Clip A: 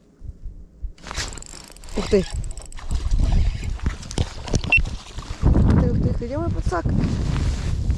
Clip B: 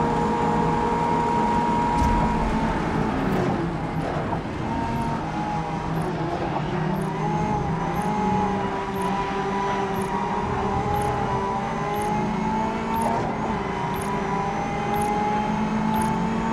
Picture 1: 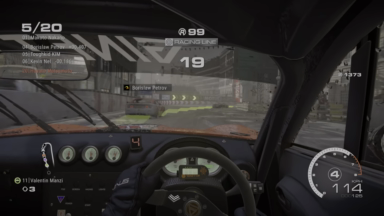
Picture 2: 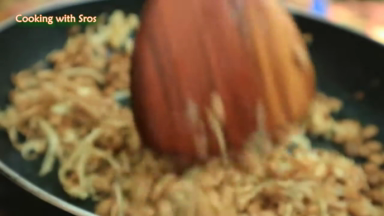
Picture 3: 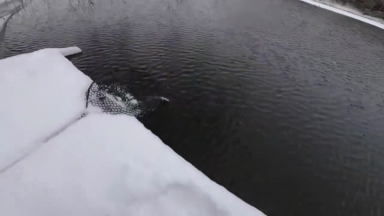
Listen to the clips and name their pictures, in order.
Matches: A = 3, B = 1